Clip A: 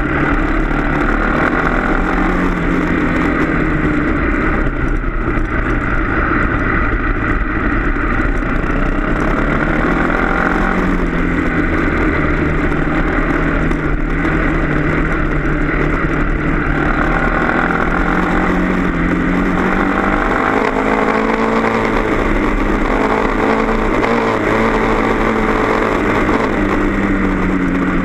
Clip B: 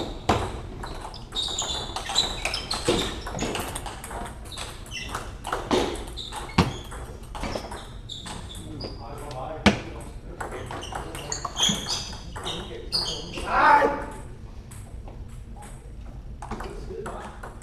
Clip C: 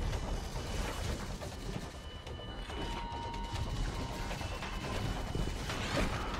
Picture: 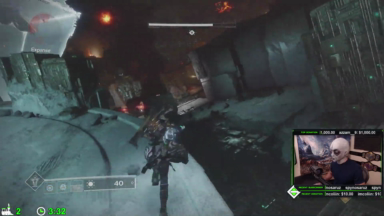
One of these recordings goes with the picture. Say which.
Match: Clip C